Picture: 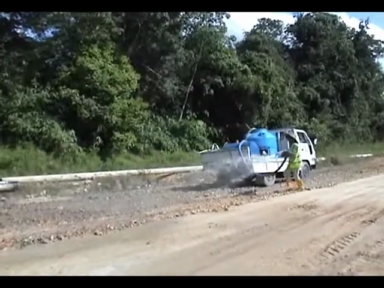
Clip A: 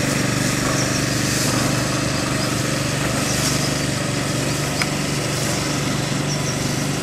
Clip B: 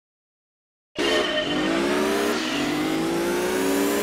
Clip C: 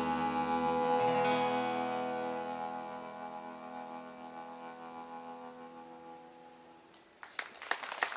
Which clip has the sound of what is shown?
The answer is A